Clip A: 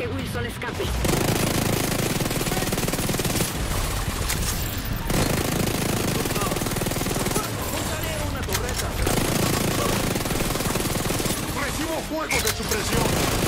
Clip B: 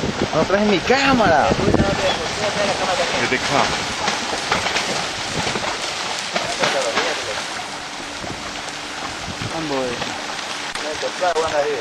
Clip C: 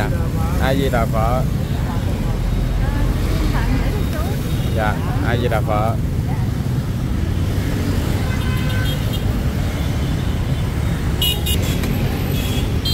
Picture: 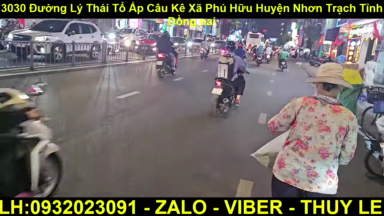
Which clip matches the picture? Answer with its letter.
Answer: C